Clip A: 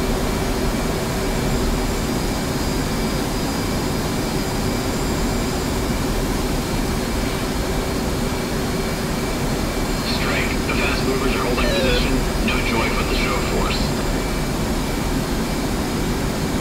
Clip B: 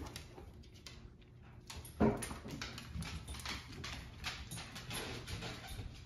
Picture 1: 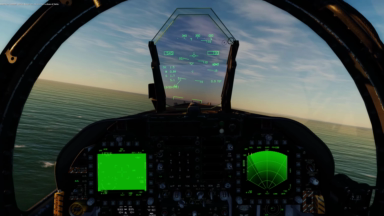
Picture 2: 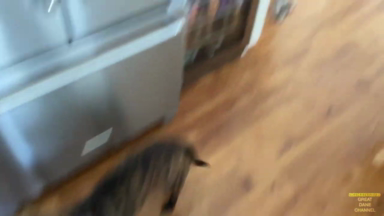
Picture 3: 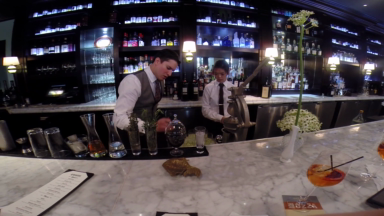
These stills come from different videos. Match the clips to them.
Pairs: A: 1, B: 2